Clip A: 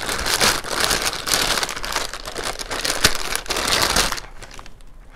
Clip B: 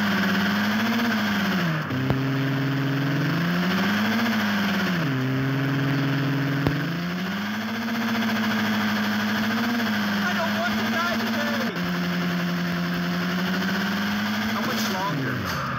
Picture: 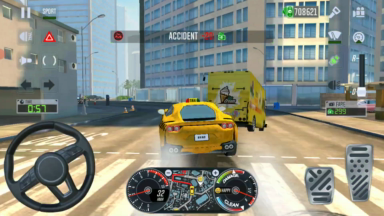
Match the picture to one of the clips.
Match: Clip B